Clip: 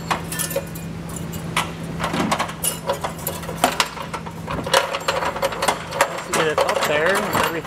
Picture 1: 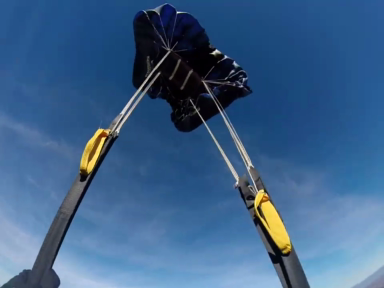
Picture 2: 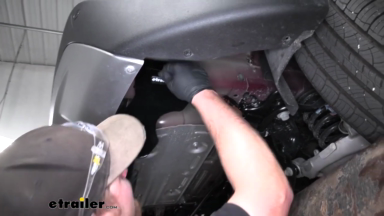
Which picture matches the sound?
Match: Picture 2